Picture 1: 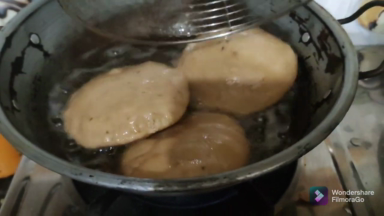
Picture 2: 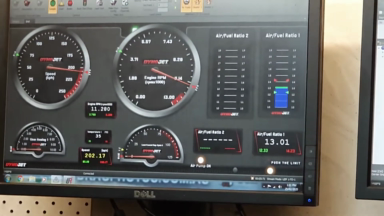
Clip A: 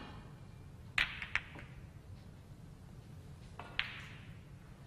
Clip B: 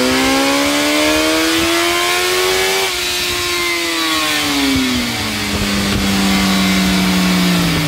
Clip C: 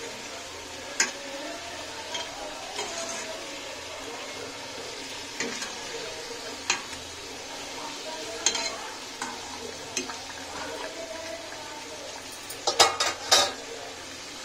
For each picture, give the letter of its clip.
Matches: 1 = C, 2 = B